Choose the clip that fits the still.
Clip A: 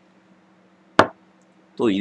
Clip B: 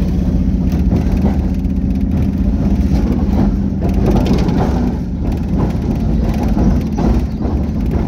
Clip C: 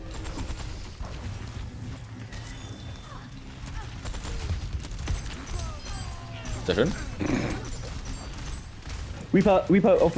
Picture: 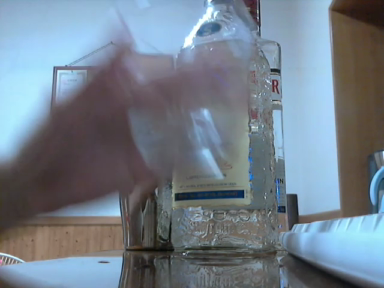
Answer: A